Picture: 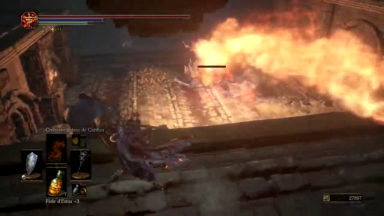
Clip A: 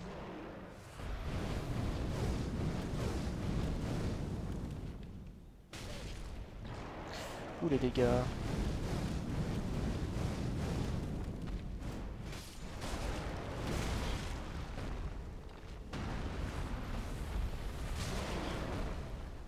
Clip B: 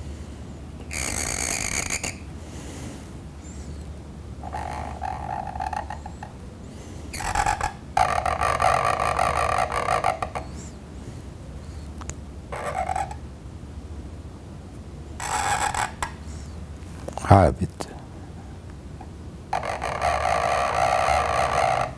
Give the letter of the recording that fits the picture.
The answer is A